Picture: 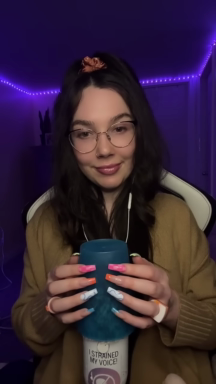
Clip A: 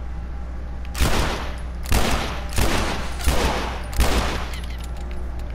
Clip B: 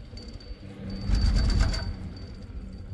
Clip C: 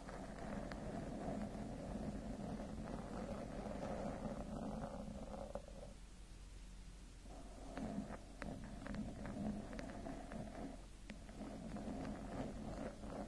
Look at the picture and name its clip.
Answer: C